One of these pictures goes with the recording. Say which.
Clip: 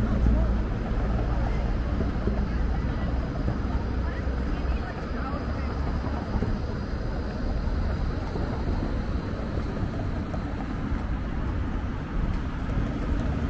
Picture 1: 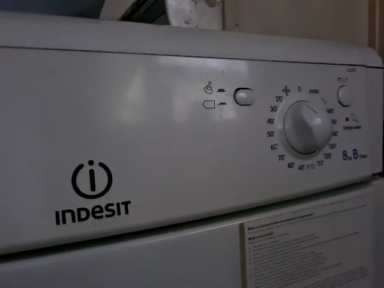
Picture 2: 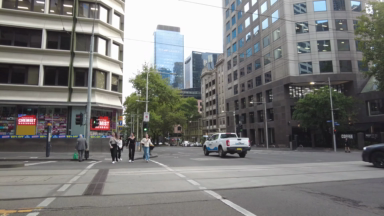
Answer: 2